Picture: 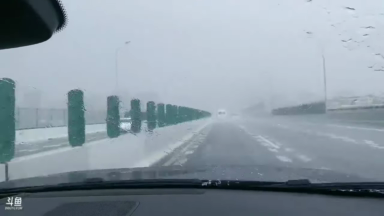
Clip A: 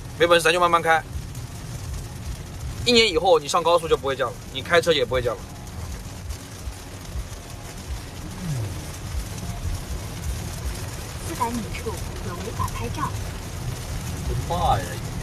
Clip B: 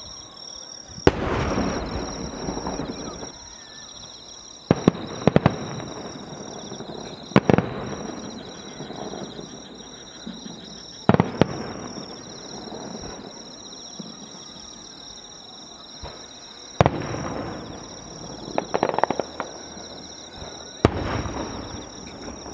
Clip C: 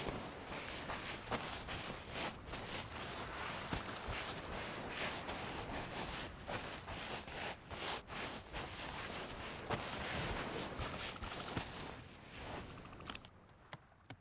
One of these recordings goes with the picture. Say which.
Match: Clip A